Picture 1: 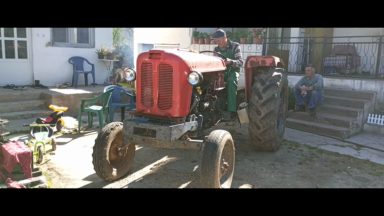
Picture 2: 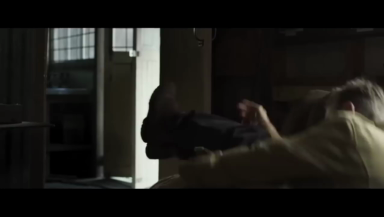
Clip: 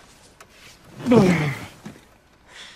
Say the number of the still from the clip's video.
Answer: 2